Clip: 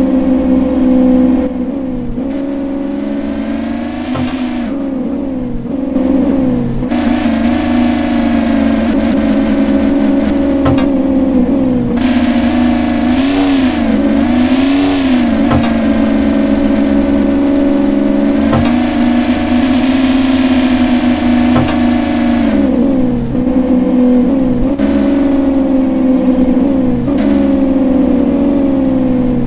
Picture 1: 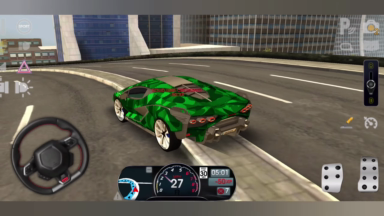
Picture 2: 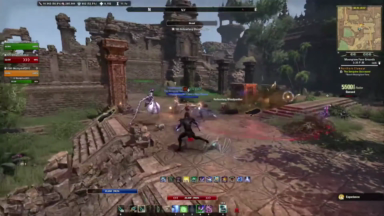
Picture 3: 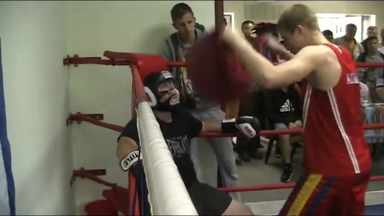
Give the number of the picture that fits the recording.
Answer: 1